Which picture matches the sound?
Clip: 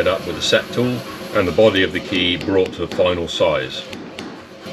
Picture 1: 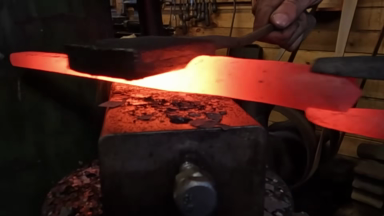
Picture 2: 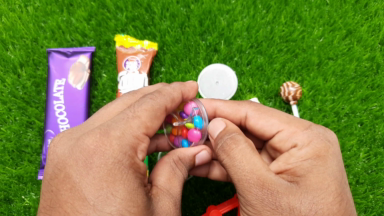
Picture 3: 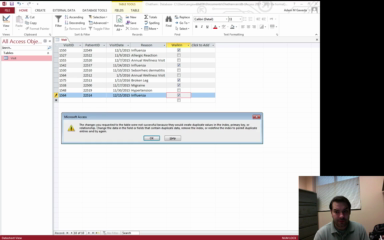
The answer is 1